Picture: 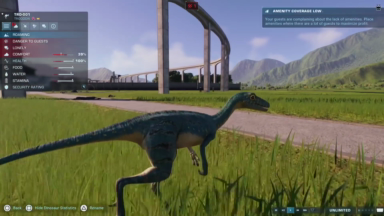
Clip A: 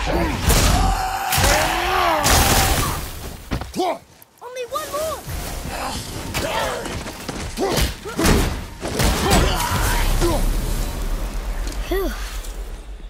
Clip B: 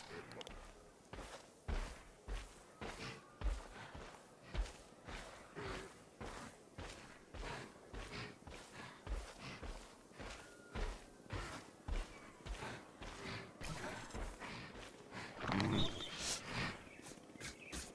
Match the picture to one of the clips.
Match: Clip B